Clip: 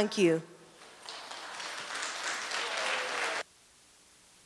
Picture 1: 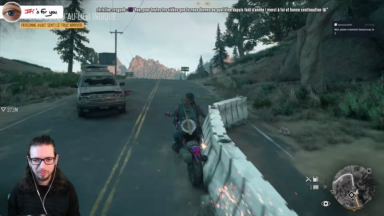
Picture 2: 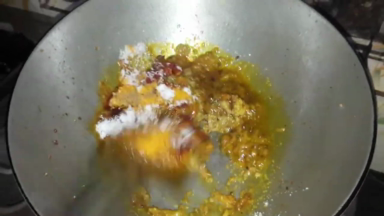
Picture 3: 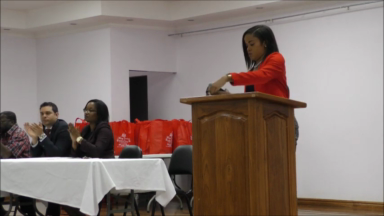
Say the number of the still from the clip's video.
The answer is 3